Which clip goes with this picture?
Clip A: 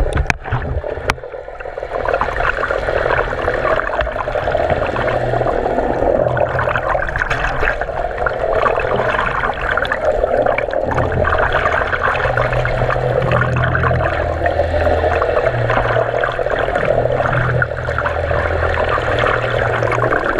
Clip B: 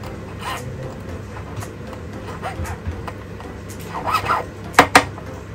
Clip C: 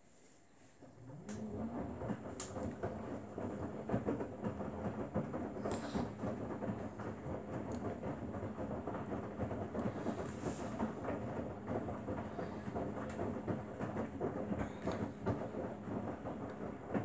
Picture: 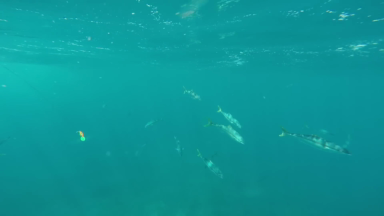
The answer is A